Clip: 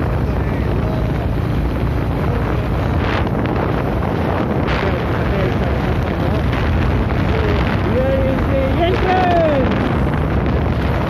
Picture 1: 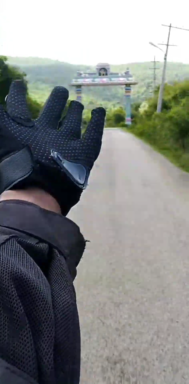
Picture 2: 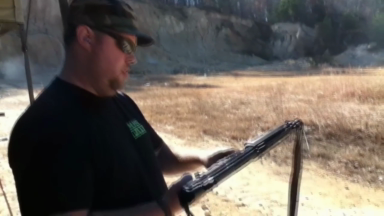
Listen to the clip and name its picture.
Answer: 1